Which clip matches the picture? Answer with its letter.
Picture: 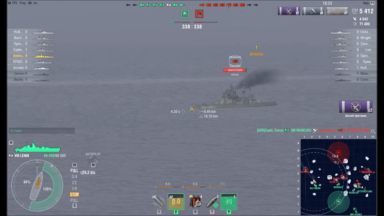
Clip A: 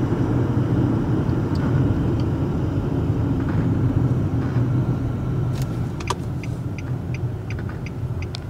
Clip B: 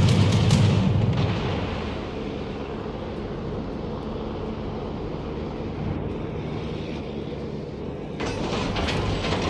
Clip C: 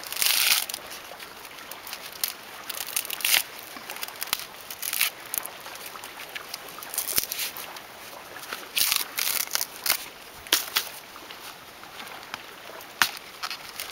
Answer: B